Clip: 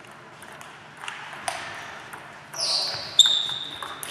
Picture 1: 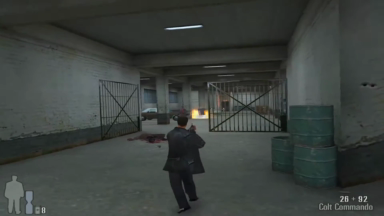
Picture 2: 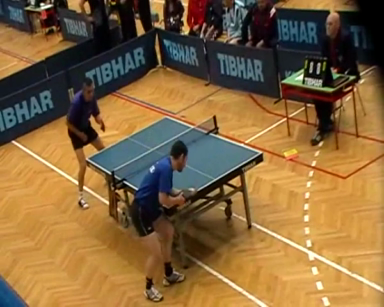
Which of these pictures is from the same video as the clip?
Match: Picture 2